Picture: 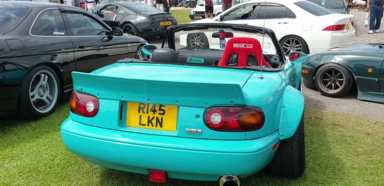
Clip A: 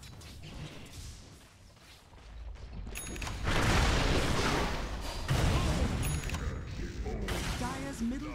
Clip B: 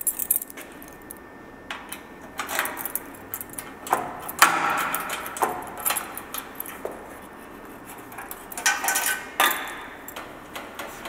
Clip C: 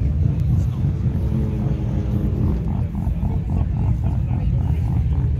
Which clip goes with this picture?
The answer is C